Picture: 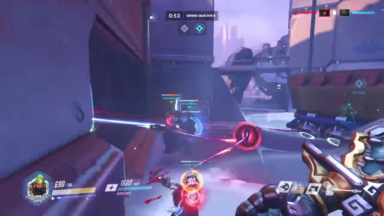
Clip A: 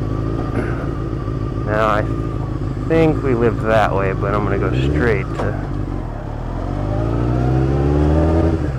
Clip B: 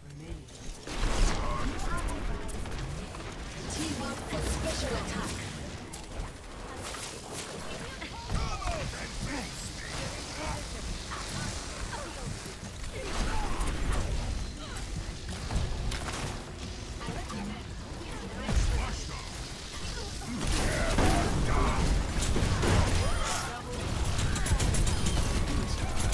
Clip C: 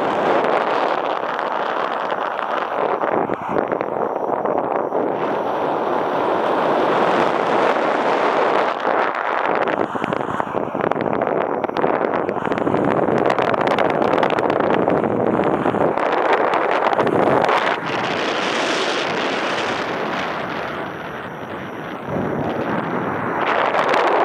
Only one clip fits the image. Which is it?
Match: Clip B